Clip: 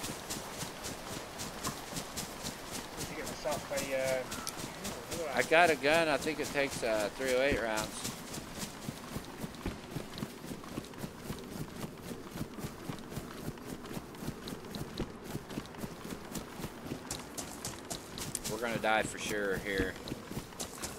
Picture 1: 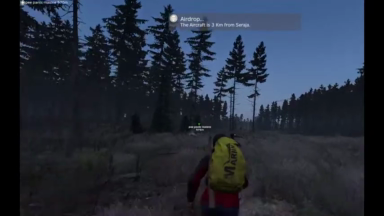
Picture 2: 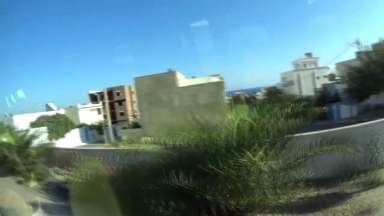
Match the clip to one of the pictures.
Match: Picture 1